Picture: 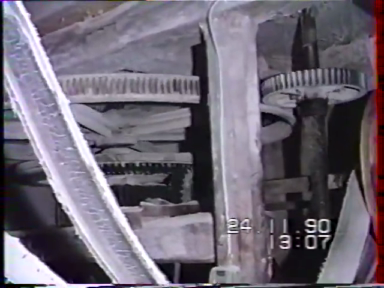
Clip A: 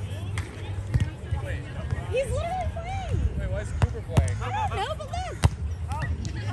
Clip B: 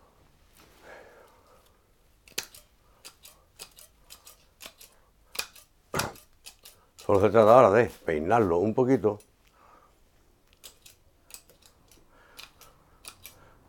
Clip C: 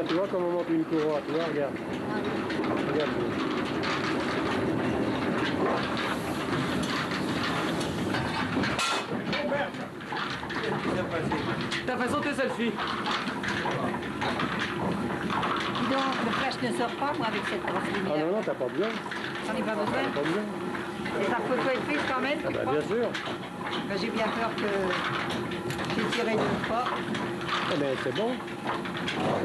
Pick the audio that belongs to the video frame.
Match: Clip C